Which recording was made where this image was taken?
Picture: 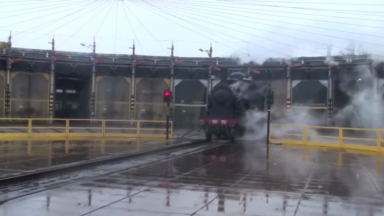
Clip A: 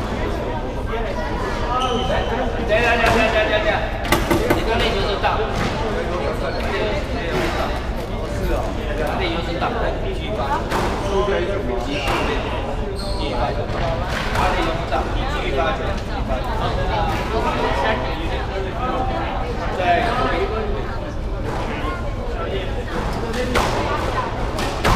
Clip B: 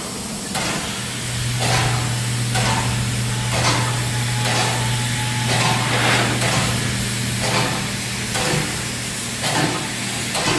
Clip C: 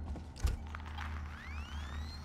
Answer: B